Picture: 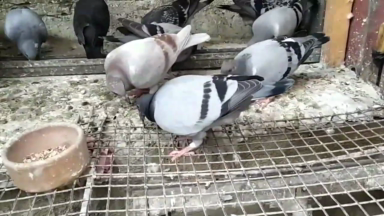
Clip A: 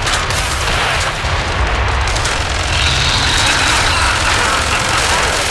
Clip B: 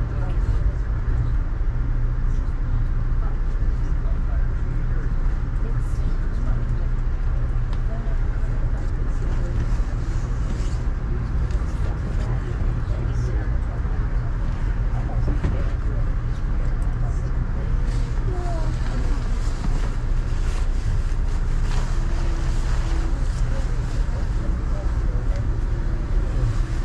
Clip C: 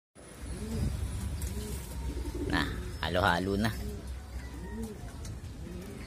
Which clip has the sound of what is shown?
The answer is C